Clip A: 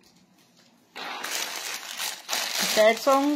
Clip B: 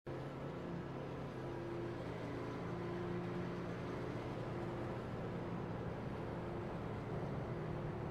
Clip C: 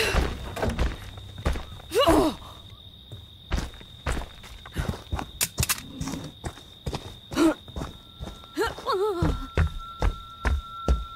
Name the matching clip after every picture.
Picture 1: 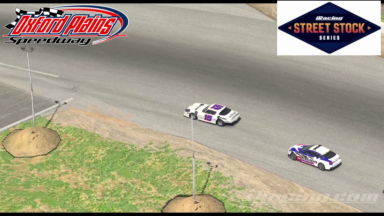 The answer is B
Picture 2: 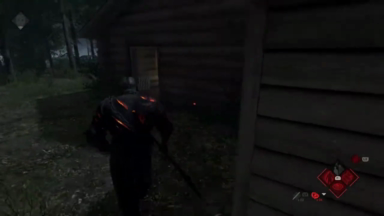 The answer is C